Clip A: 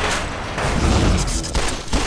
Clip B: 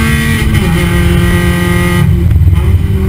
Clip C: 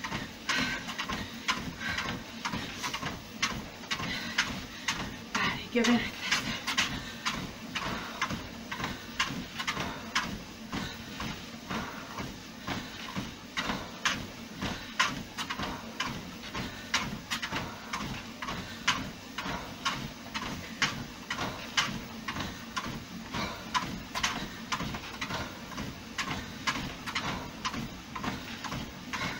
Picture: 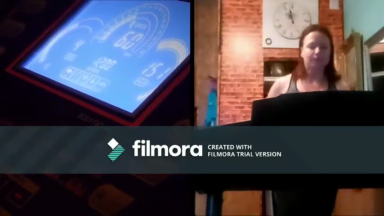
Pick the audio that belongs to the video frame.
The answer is C